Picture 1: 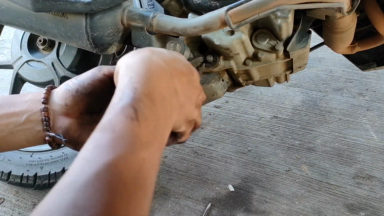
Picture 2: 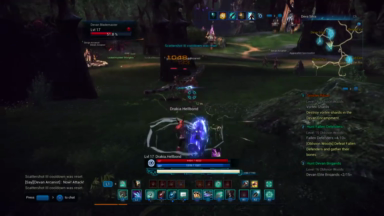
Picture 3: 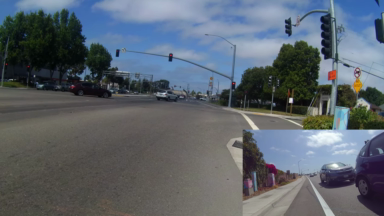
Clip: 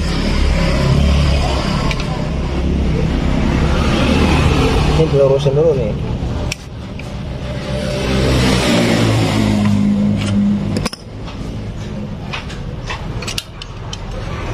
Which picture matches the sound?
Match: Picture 1